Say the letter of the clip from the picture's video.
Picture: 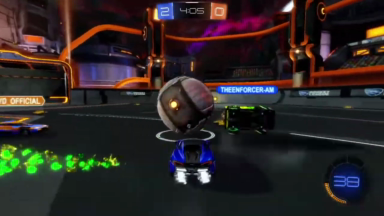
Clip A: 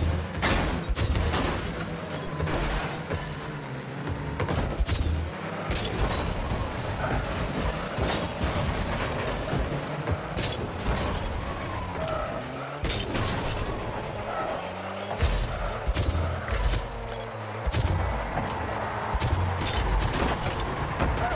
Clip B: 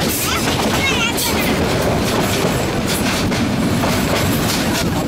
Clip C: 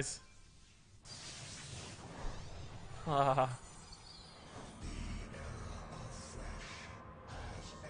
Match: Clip A